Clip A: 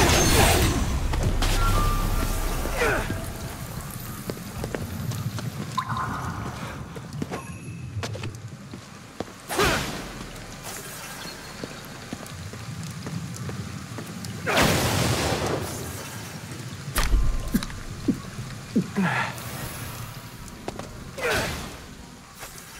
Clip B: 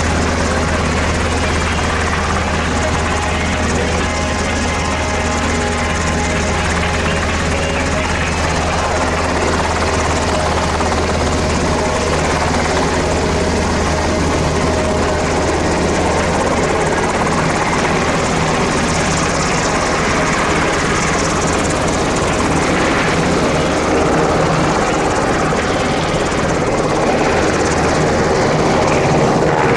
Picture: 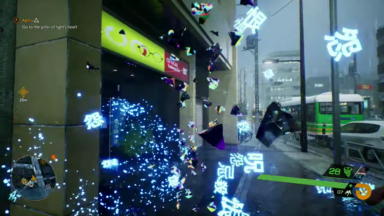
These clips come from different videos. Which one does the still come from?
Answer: A